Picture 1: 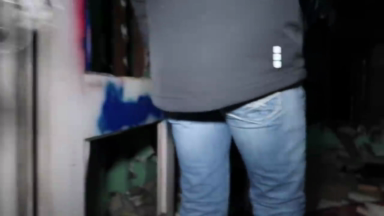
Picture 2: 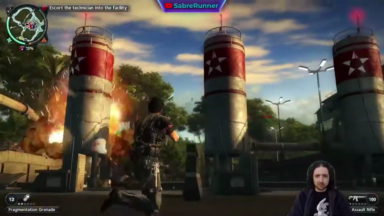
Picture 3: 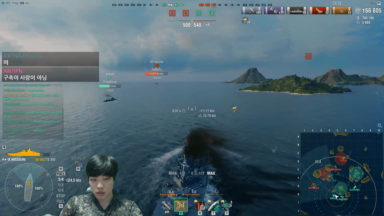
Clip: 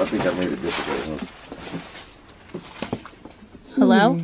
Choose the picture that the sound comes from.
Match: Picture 1